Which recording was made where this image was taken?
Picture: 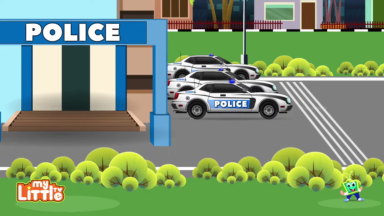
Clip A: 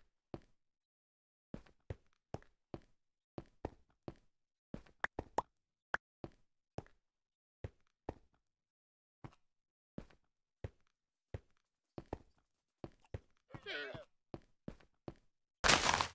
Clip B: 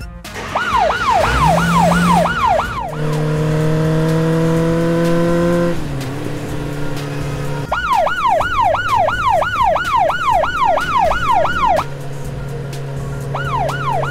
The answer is B